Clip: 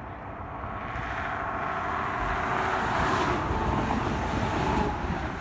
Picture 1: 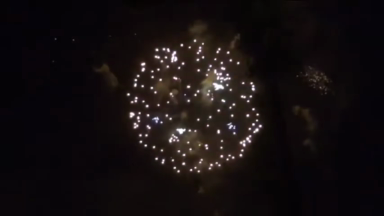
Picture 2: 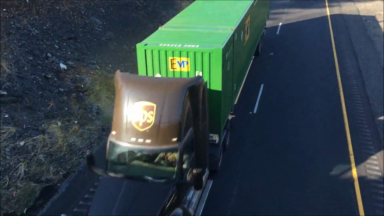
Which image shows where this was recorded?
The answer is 2